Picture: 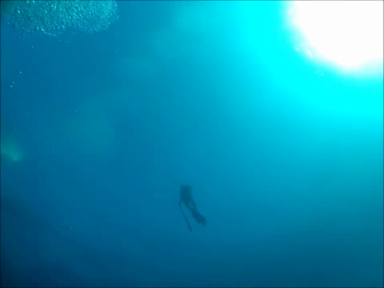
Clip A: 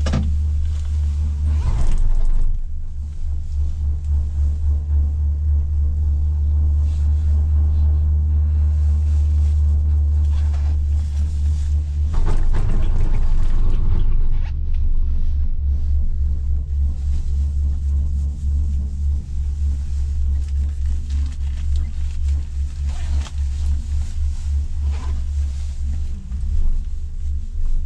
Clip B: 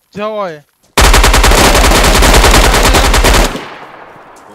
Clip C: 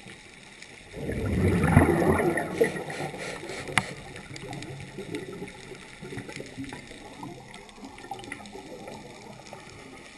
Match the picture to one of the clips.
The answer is C